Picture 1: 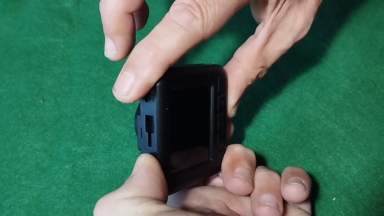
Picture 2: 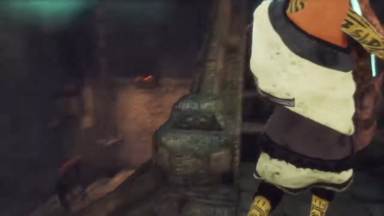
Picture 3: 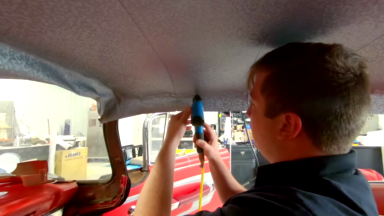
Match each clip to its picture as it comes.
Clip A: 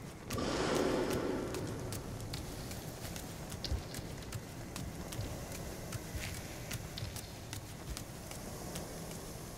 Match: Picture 2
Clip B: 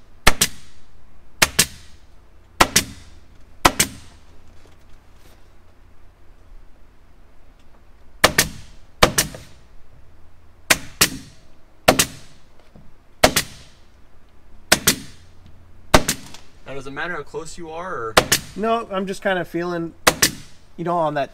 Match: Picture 3